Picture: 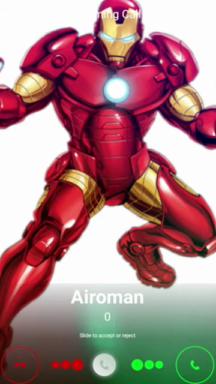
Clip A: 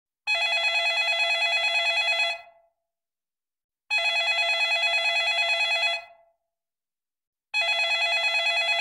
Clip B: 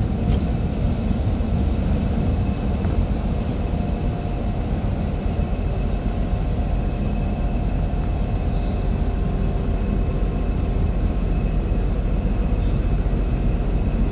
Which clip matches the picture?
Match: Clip A